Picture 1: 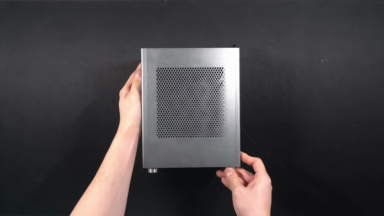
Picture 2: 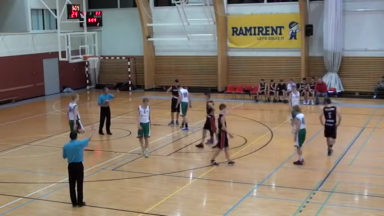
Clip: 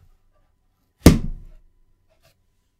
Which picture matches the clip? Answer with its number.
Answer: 1